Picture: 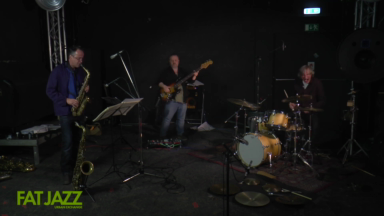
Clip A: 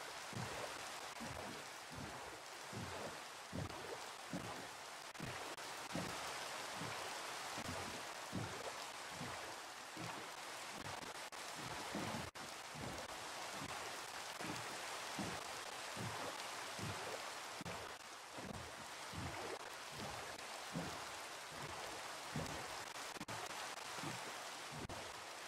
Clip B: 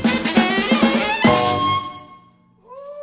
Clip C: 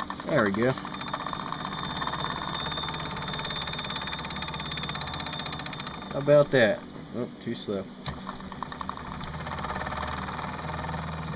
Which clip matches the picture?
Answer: B